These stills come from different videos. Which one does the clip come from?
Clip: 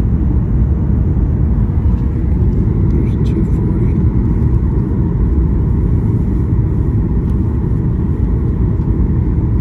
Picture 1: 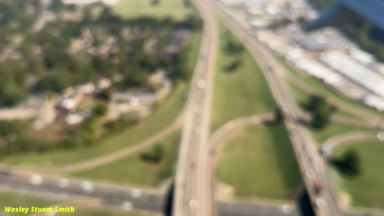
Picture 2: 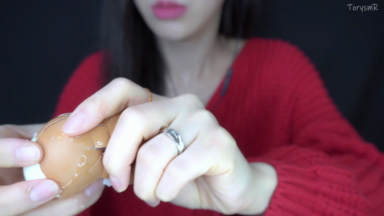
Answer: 1